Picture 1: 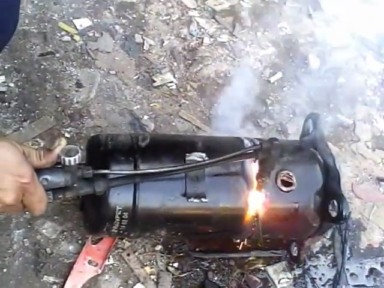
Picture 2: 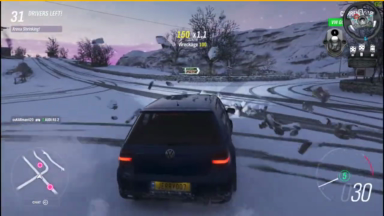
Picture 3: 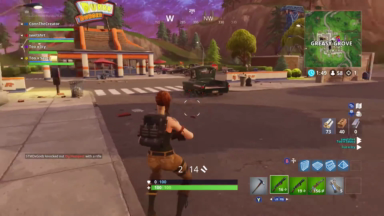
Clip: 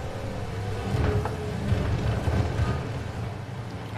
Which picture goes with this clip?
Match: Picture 2